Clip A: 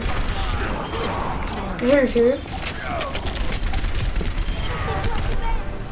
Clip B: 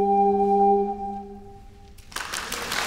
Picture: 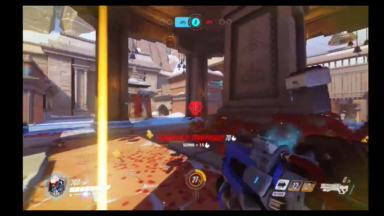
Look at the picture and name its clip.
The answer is A